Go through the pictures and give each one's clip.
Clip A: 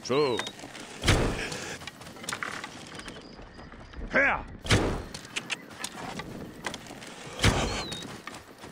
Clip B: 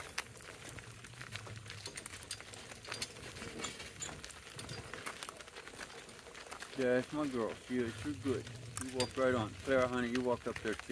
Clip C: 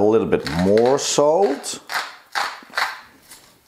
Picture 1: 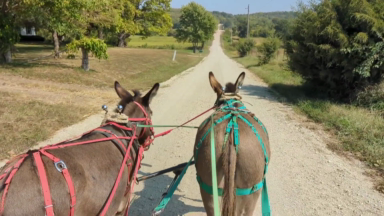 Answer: B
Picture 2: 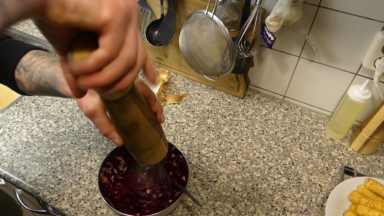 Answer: C